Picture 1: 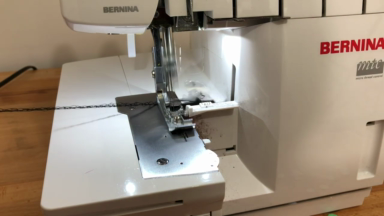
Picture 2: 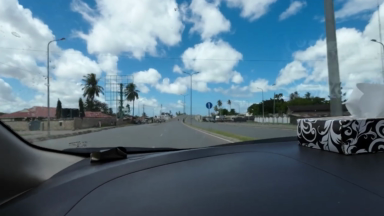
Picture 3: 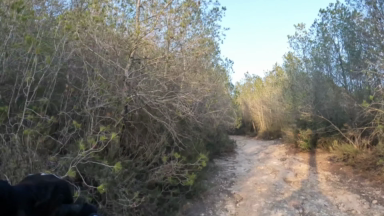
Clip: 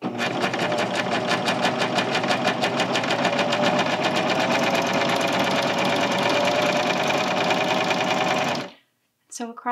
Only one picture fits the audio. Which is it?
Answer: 1